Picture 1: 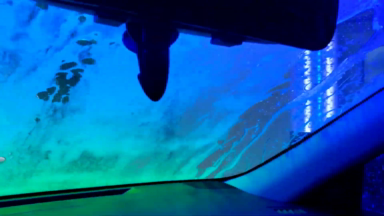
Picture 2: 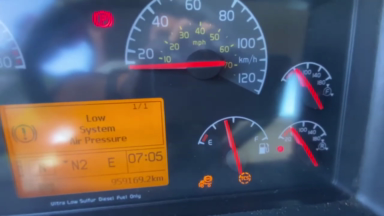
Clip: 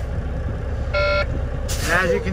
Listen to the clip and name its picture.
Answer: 2